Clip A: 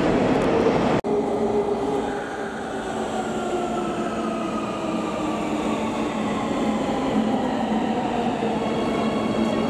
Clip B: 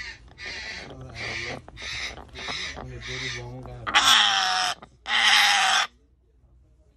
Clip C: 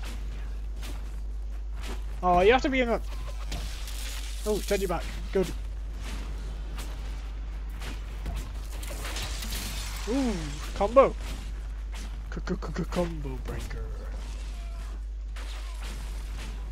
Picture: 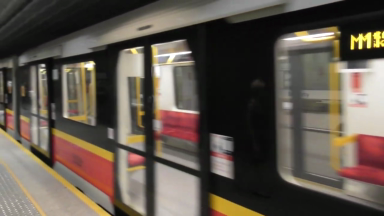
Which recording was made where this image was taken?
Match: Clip A